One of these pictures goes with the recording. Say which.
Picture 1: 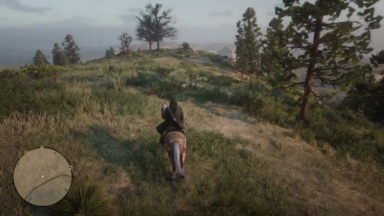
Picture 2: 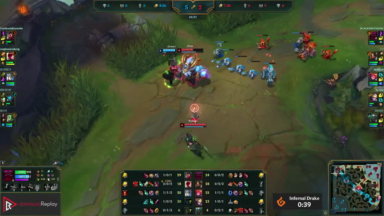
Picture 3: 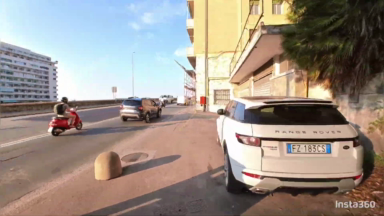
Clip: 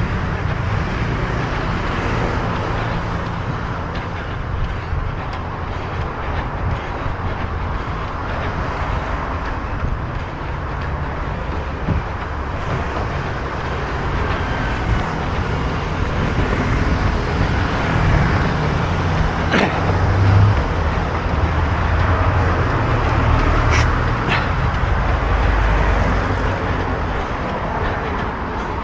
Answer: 3